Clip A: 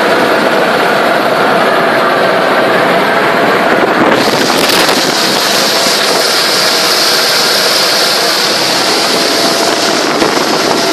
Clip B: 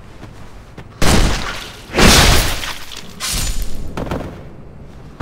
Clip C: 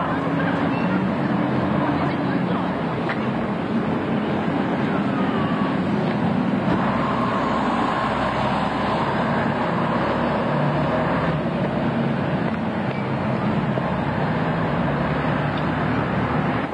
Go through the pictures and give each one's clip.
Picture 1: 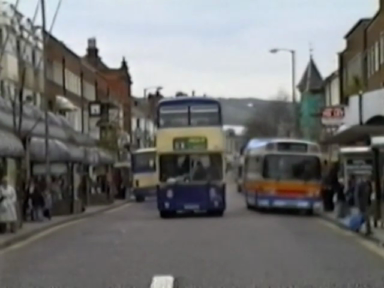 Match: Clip C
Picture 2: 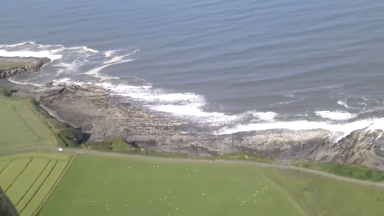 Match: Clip A